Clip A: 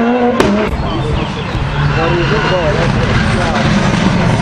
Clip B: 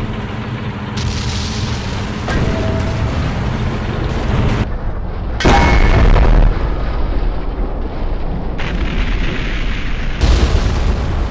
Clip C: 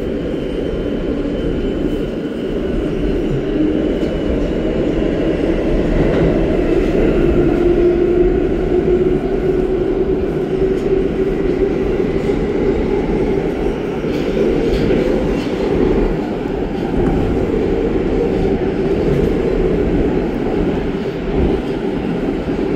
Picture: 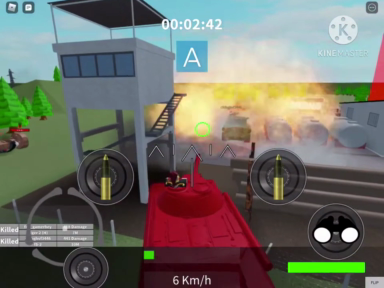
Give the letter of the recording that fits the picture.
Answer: B